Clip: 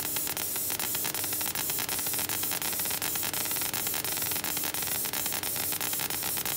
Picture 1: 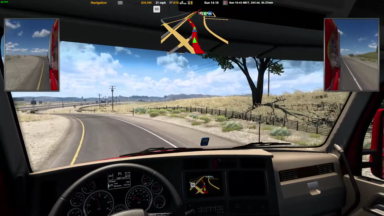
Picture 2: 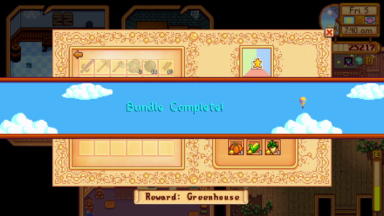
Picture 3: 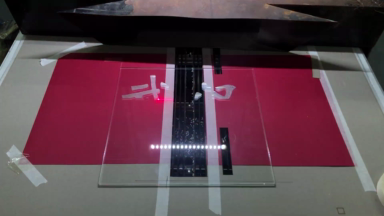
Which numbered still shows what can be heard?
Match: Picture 3